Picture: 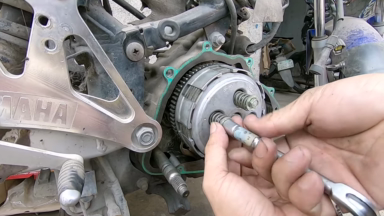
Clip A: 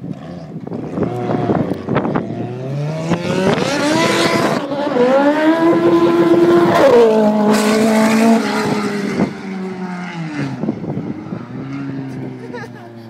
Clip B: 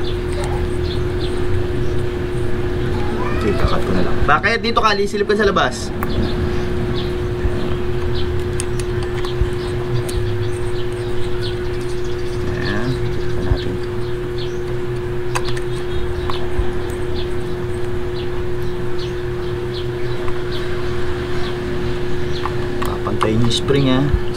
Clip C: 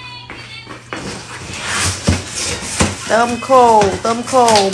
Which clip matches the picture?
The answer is B